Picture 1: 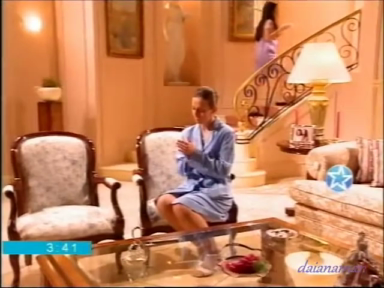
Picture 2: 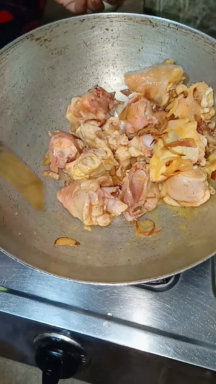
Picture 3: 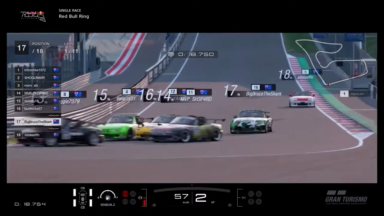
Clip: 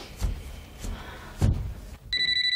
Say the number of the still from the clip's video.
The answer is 1